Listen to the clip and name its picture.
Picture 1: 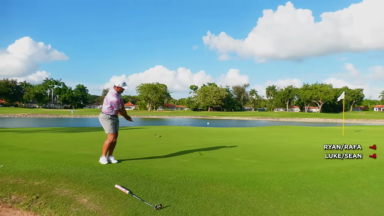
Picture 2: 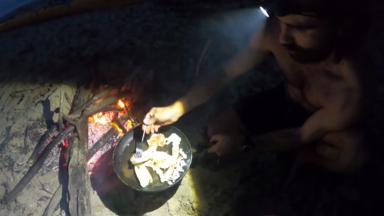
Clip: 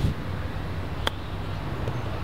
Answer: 1